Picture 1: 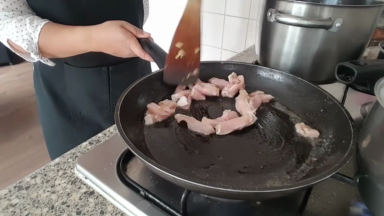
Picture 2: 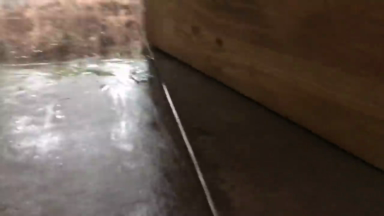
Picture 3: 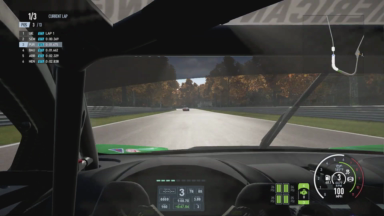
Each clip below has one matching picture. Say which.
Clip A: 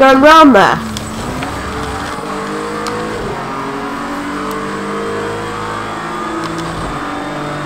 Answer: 3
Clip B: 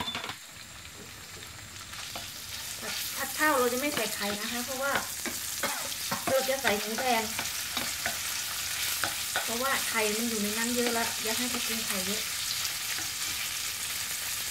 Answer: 1